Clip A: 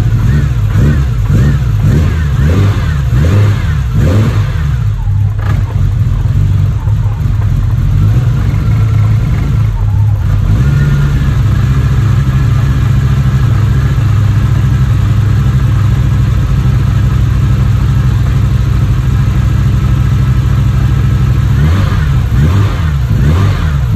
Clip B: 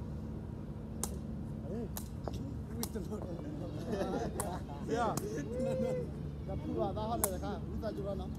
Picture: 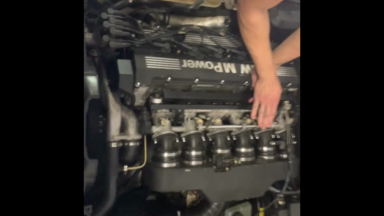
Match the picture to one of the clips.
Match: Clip A